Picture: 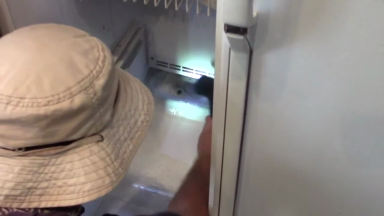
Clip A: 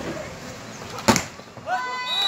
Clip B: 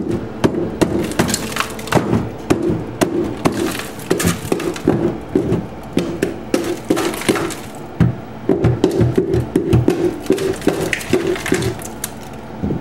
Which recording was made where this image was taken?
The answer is B